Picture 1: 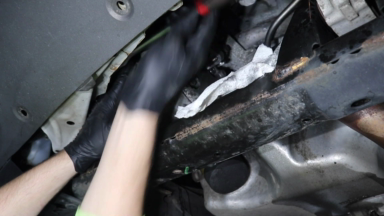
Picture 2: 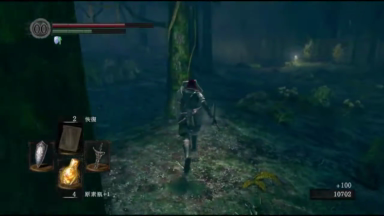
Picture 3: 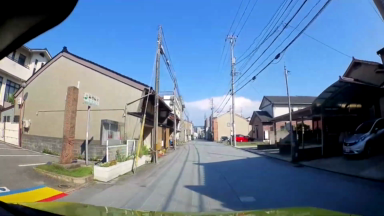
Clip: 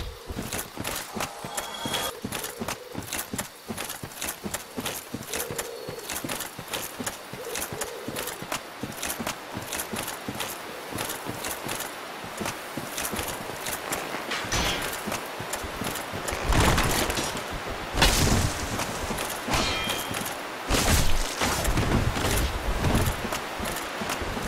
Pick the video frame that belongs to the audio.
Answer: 2